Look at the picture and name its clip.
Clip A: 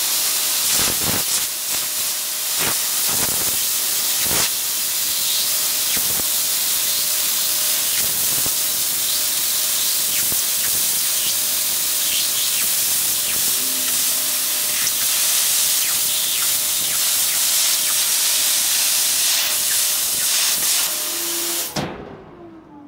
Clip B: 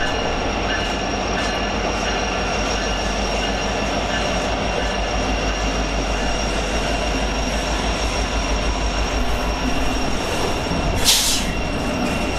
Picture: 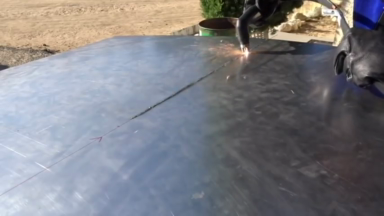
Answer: A